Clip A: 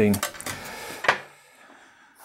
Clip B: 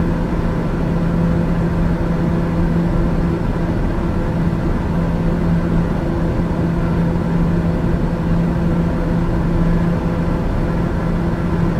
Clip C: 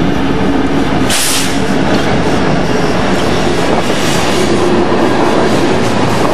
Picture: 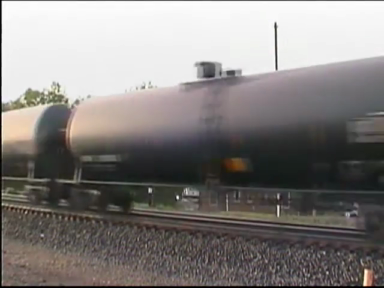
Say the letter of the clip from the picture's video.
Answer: C